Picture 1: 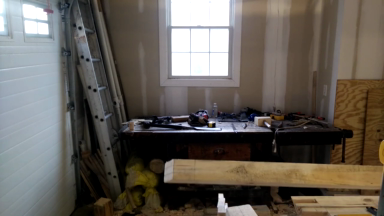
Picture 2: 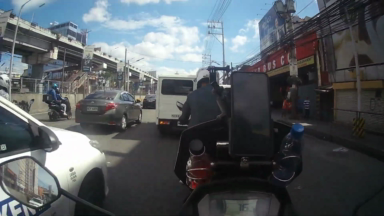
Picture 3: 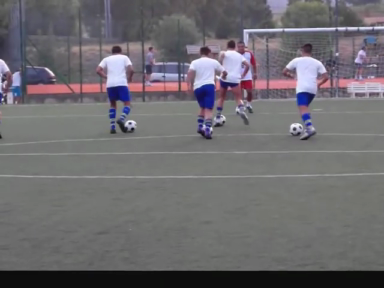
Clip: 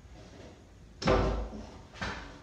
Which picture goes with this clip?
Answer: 1